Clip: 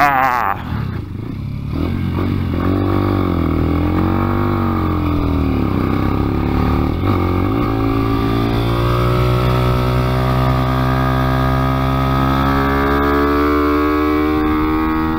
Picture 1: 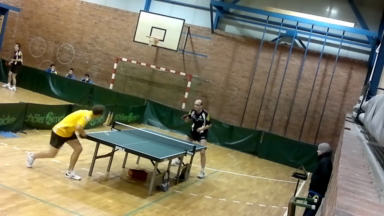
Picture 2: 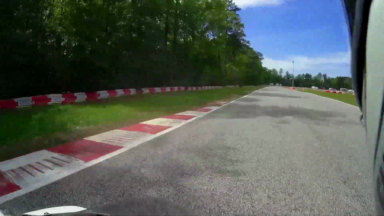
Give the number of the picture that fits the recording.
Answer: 2